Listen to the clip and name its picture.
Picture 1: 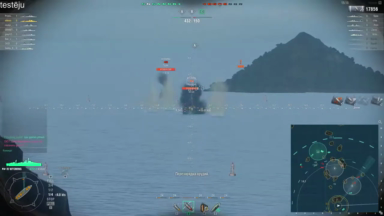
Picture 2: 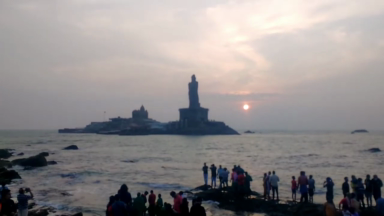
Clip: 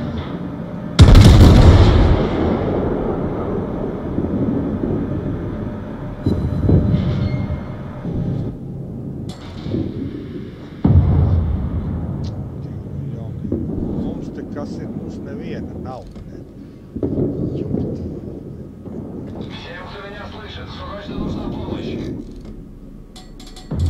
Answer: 1